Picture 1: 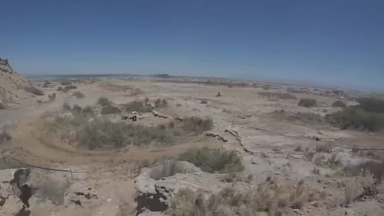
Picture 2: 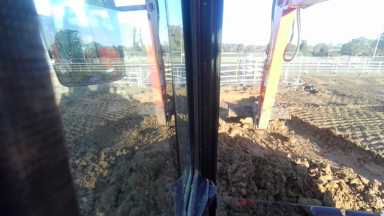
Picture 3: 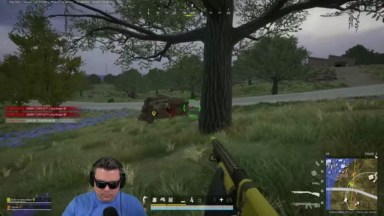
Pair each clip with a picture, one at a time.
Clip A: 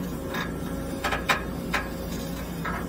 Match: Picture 2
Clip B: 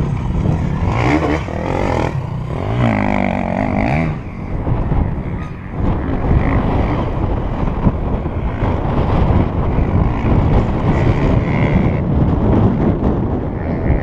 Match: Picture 1